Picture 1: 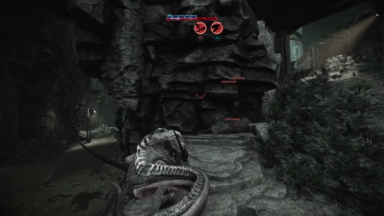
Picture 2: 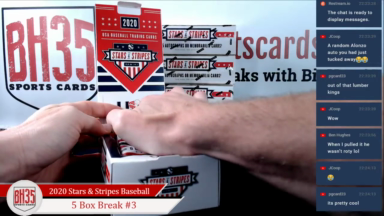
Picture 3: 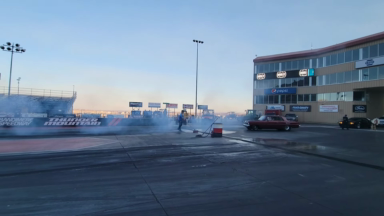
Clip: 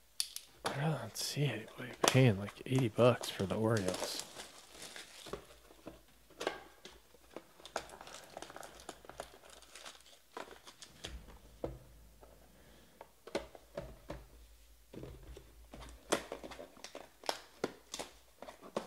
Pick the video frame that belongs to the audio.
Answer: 2